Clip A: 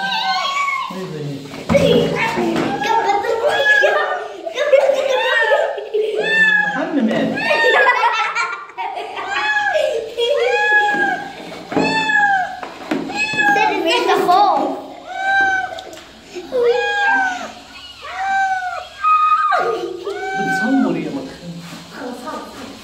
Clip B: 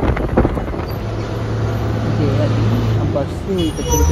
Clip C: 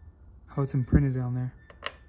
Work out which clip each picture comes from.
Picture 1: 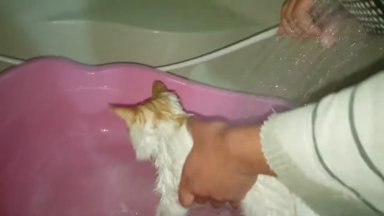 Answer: A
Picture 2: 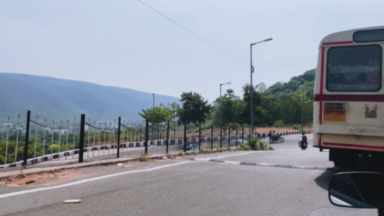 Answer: B